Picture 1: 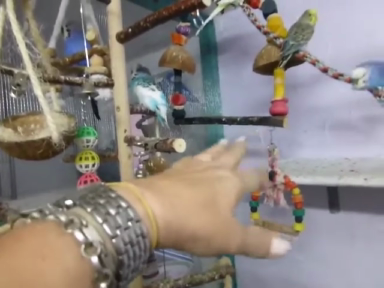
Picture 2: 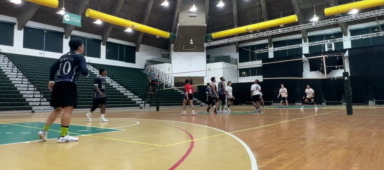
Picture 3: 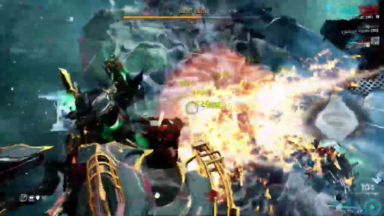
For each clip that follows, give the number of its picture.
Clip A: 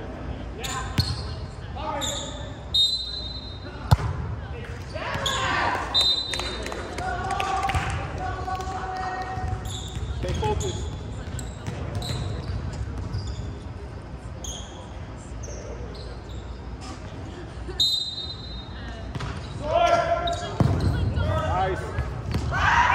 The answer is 2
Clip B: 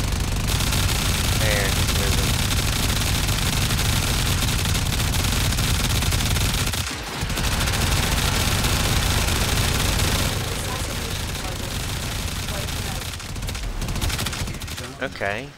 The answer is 3